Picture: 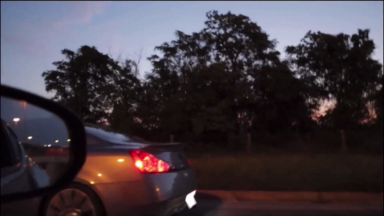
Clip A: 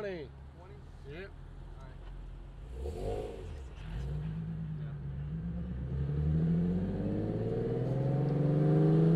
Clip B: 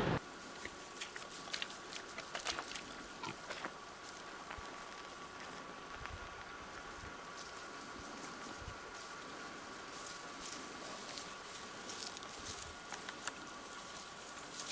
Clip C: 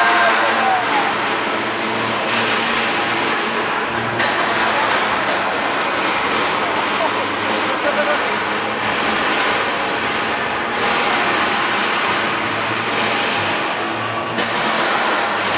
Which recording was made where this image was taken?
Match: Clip A